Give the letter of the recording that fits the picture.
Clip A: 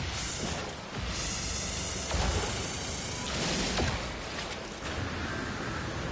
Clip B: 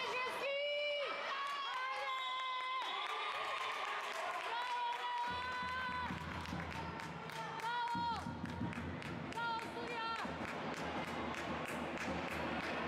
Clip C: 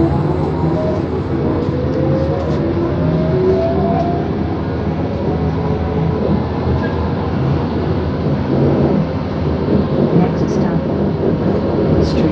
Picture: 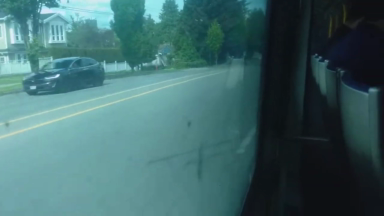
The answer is C